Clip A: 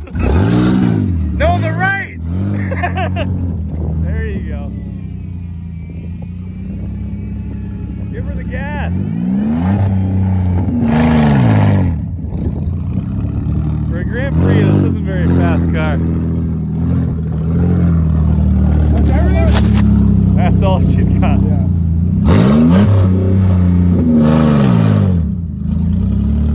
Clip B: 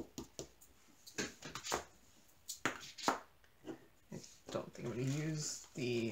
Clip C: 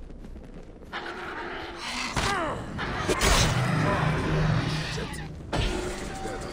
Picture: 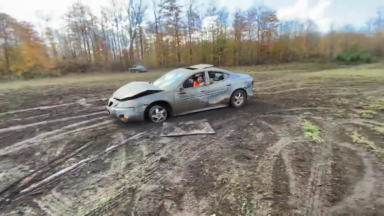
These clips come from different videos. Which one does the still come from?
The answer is A